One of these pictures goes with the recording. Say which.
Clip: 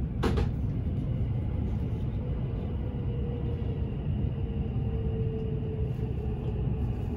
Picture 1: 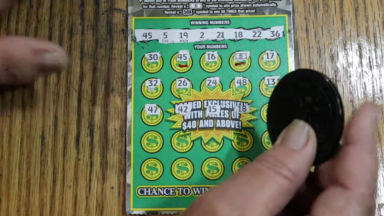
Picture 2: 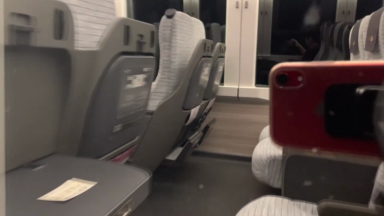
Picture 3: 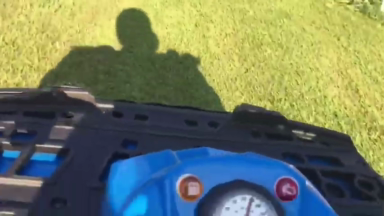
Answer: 2